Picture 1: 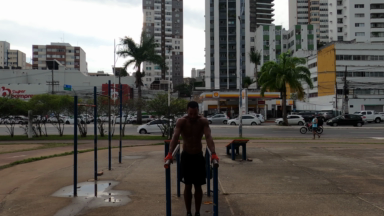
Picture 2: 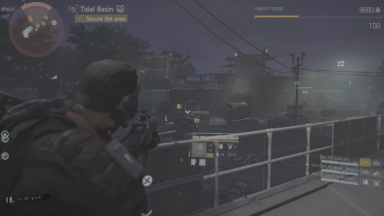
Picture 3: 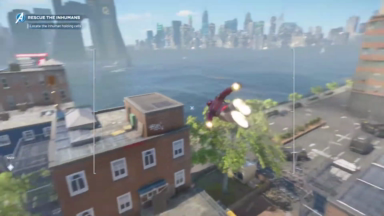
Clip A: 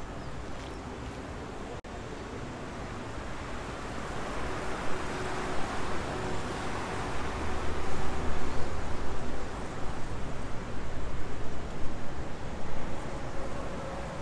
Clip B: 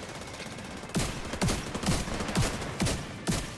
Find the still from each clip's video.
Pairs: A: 1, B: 2